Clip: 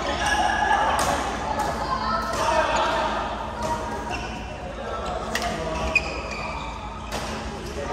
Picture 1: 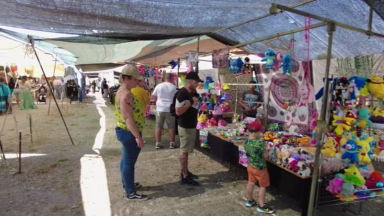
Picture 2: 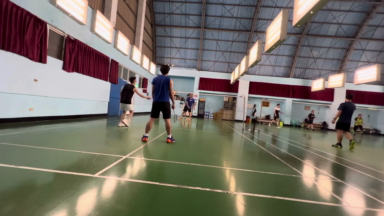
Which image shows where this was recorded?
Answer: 2